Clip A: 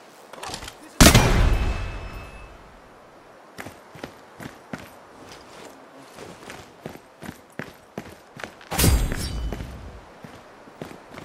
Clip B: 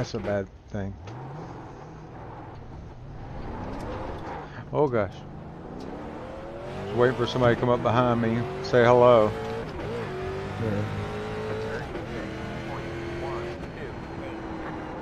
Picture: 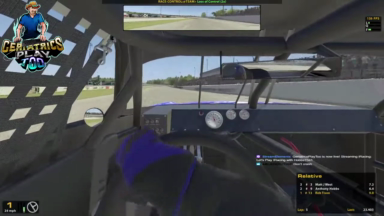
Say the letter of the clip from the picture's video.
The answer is B